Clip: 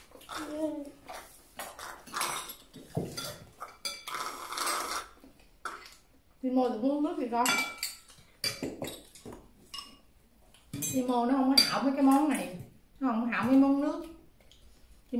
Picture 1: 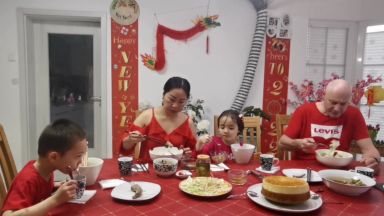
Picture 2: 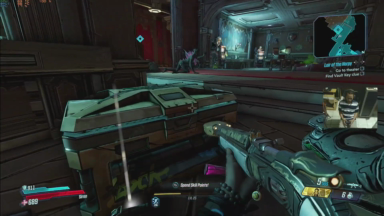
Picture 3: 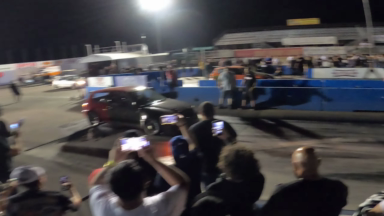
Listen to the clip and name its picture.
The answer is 1